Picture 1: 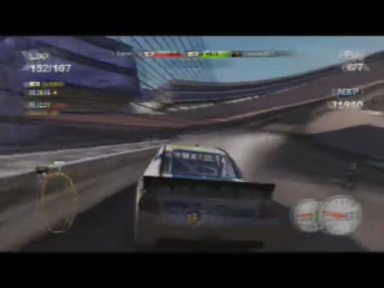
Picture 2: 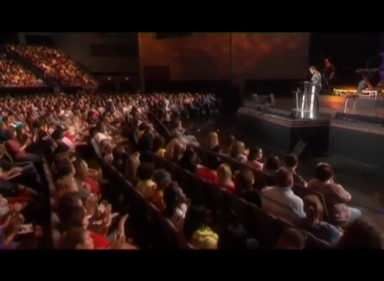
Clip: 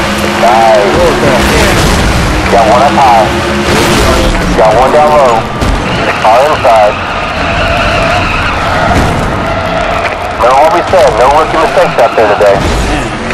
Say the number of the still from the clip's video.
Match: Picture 1